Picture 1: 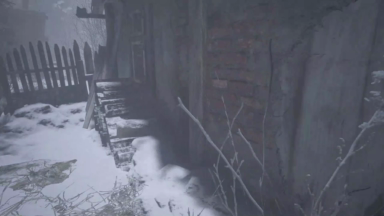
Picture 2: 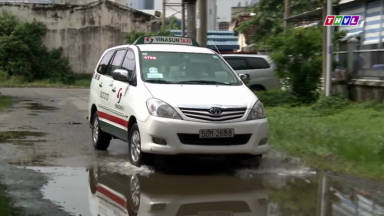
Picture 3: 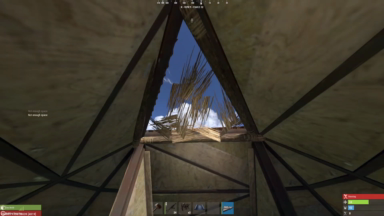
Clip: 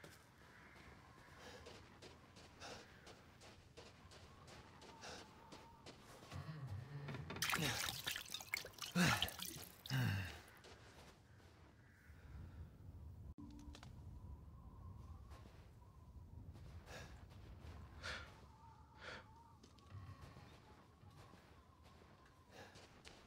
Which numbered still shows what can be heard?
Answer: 1